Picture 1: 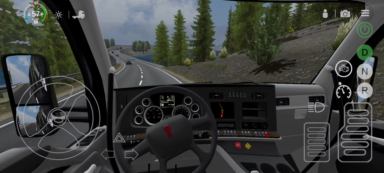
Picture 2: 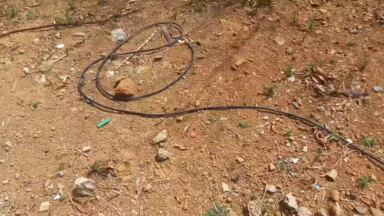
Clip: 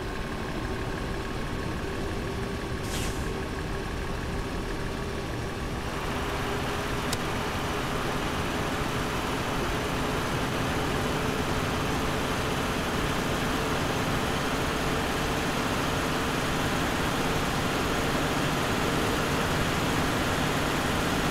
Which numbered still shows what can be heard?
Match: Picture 1